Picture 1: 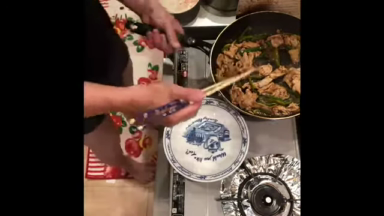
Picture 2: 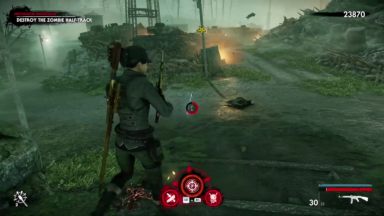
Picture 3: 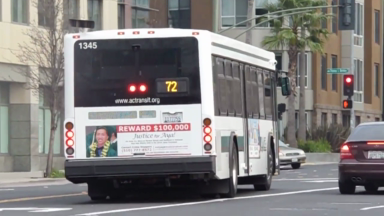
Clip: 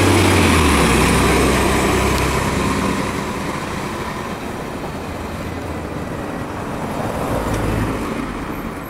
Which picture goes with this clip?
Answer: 3